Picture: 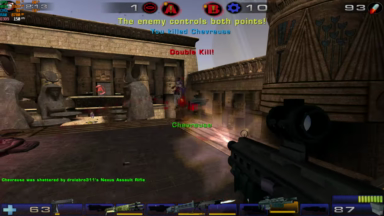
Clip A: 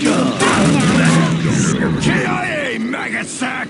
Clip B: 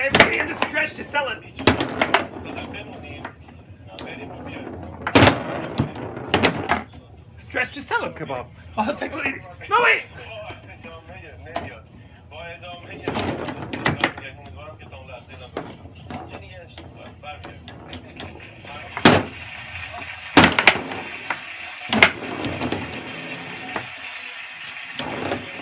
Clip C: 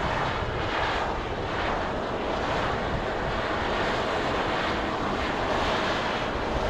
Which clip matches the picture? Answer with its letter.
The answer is A